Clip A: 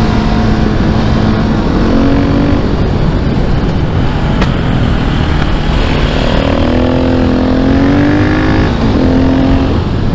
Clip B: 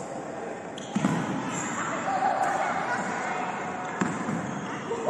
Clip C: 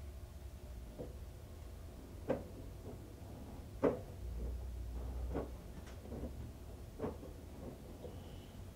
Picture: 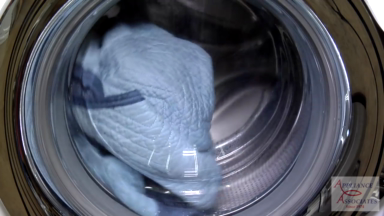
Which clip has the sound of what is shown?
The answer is C